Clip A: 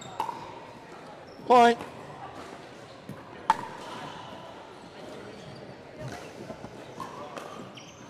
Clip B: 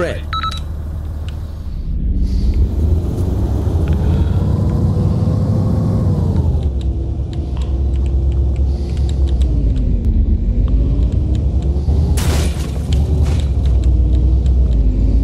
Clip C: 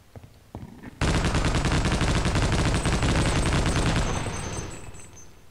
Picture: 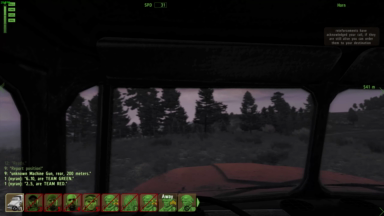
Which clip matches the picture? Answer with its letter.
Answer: B